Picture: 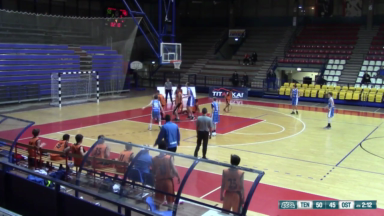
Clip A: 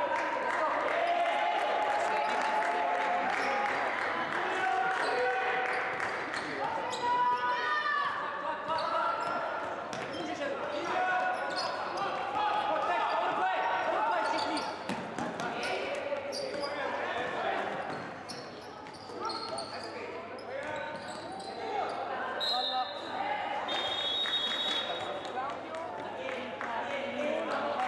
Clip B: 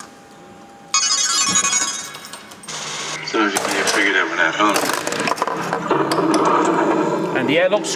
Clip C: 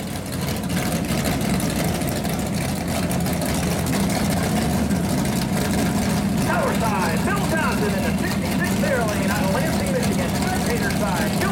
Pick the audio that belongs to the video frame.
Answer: A